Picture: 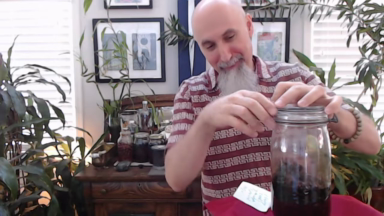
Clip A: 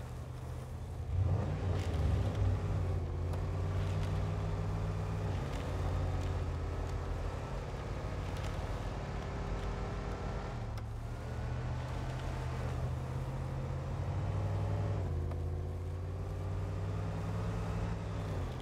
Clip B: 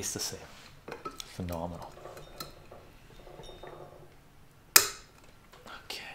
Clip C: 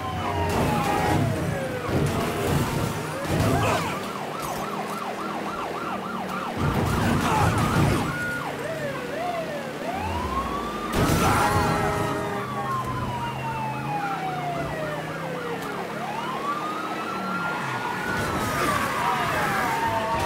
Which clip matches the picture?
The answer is B